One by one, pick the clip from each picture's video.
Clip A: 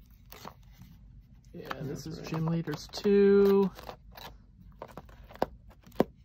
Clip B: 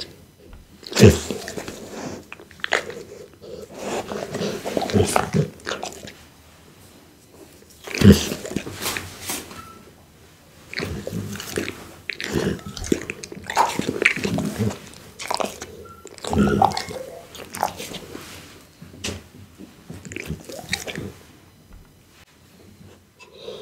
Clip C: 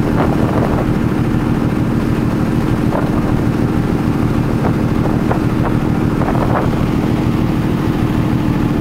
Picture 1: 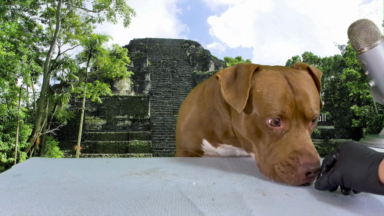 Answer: B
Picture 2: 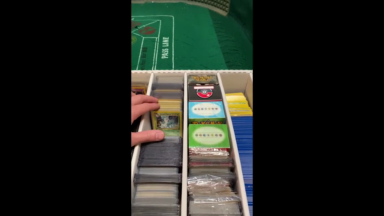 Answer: A